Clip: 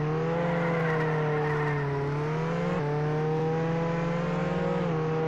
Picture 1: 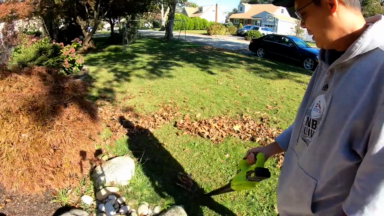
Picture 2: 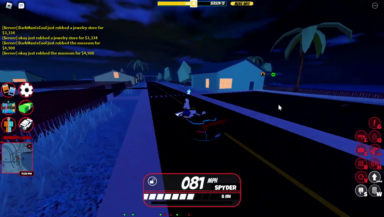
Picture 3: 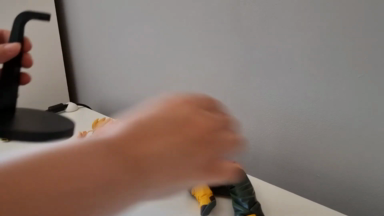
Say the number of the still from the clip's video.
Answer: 2